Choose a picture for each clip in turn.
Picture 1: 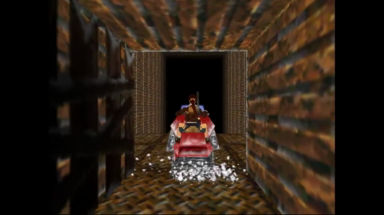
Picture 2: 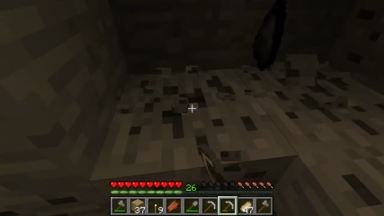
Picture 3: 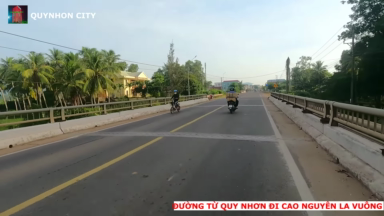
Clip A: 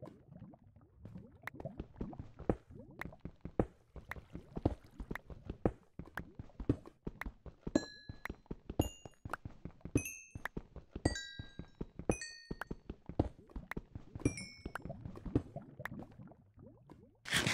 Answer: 2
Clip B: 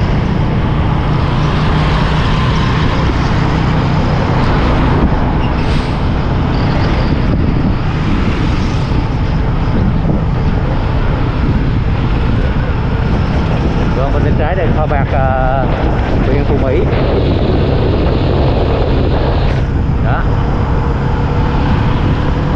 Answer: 3